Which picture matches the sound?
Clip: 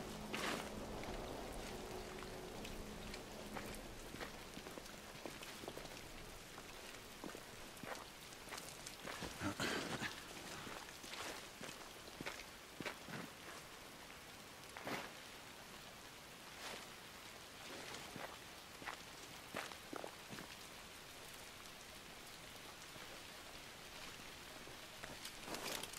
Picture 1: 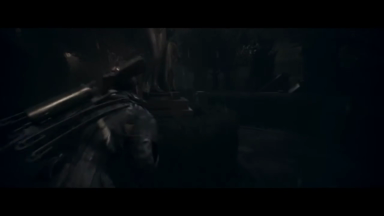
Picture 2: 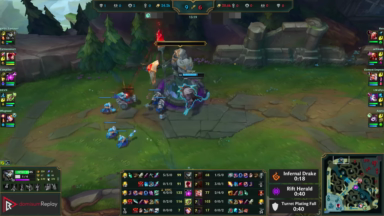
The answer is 1